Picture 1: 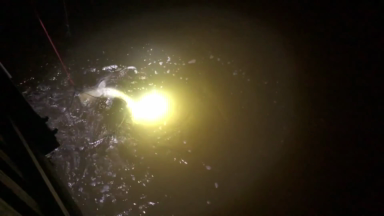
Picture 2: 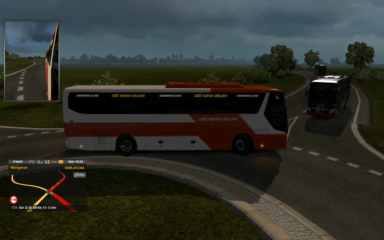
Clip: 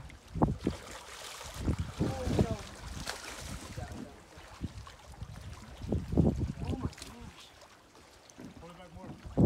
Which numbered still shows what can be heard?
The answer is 1